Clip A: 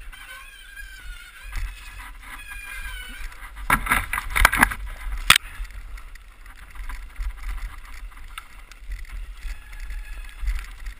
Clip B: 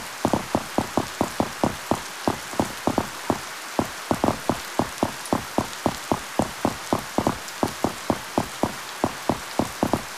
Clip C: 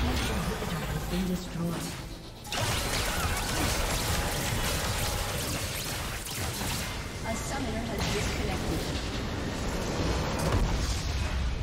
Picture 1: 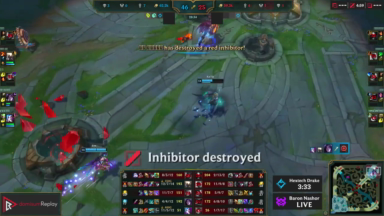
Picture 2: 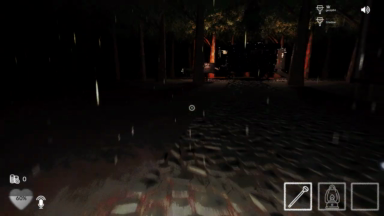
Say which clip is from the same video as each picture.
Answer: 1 C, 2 B